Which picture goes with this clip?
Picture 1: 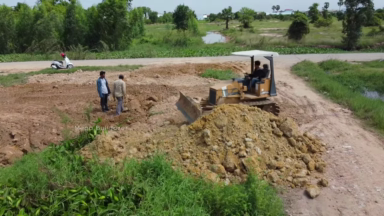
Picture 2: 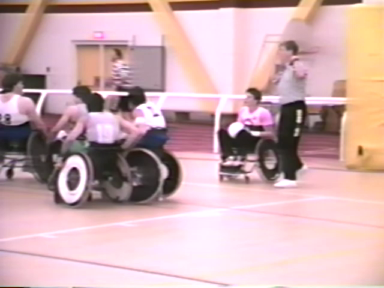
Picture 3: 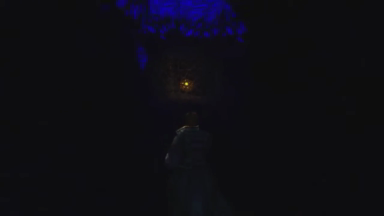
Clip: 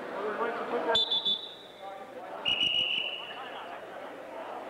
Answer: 2